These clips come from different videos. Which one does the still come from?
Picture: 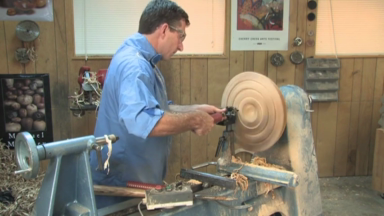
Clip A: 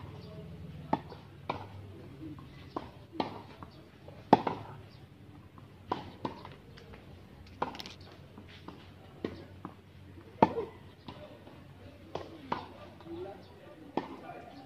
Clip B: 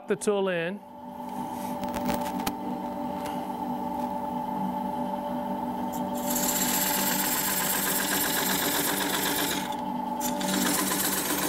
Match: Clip B